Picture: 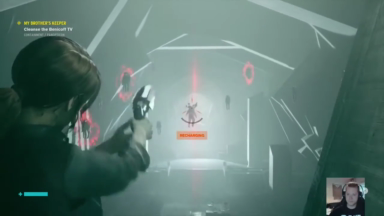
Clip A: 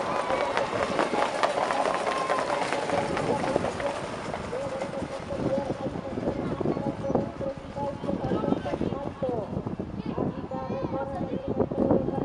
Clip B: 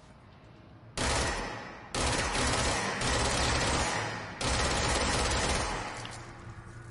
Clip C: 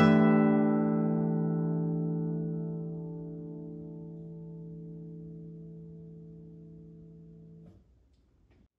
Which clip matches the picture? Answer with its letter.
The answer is B